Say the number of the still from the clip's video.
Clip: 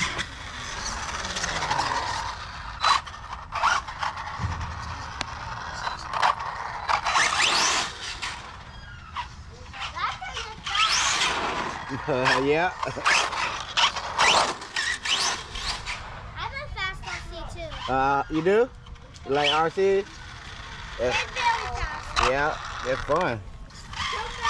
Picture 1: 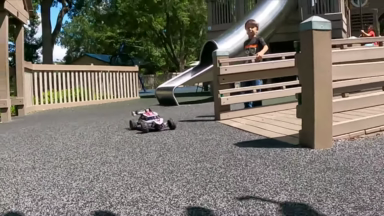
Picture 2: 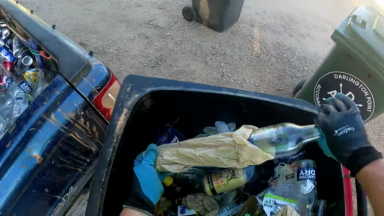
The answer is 1